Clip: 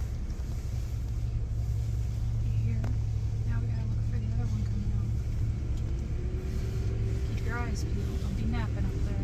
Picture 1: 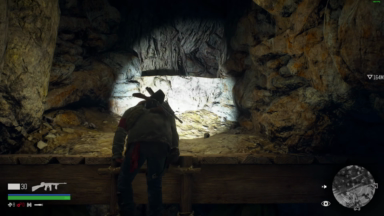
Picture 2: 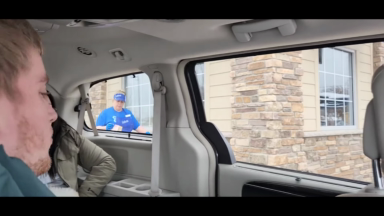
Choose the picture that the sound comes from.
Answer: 2